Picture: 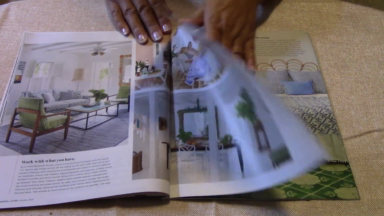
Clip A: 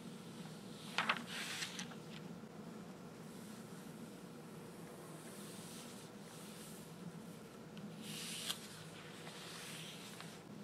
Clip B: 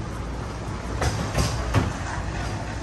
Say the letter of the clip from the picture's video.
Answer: A